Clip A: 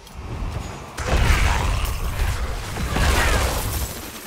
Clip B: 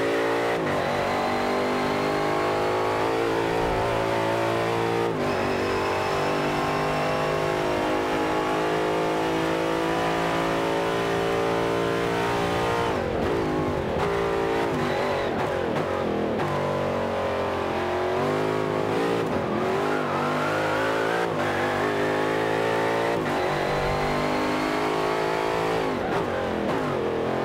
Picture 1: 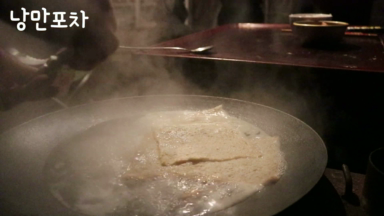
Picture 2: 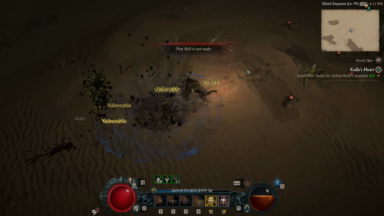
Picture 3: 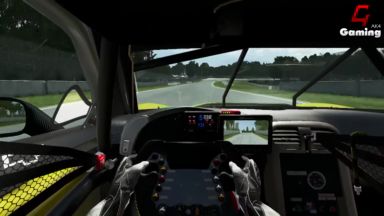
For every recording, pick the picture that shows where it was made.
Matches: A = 2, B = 3